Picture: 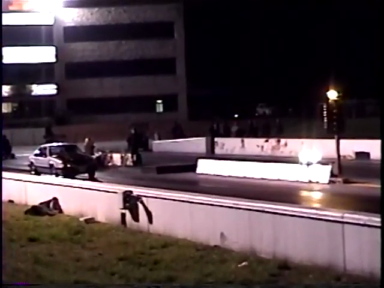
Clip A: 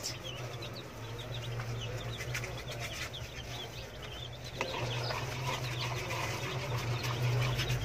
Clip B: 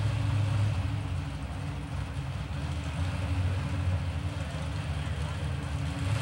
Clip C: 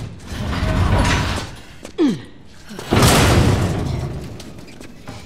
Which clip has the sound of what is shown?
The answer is B